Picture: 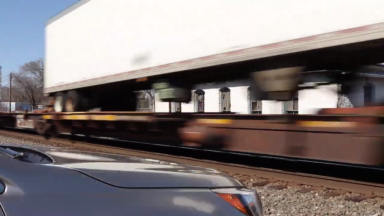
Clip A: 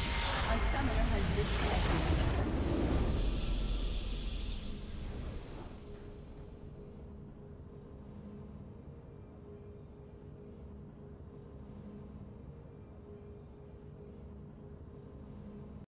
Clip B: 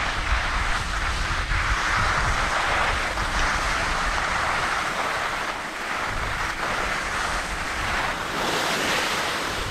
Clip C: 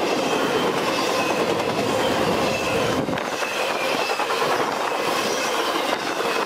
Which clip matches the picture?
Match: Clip C